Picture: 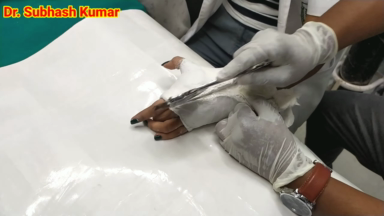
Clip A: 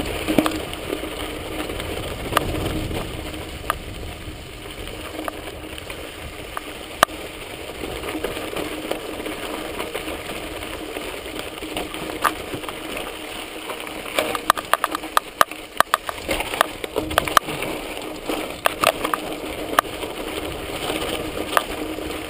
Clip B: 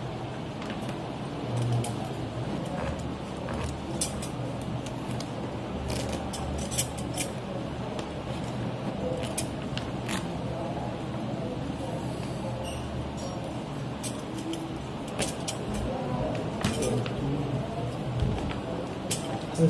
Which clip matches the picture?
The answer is B